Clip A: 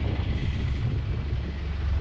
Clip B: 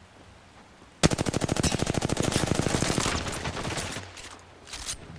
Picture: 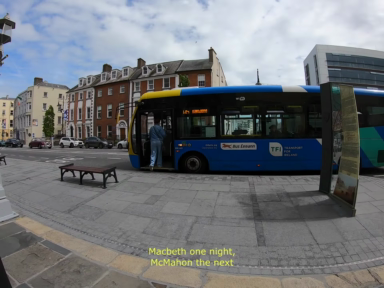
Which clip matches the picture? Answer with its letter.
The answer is A